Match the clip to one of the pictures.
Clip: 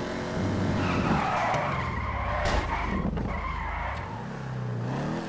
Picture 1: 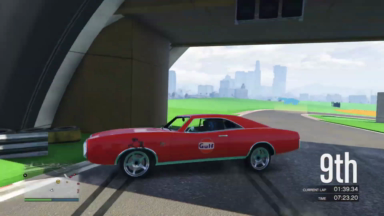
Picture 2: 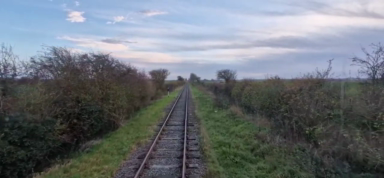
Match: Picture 1